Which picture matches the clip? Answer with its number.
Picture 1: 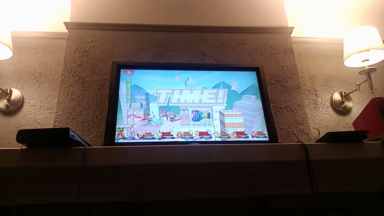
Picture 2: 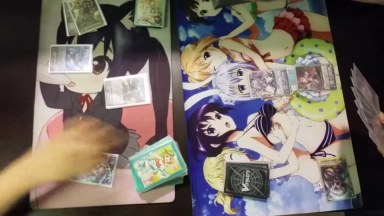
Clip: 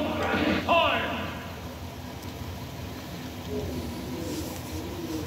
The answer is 1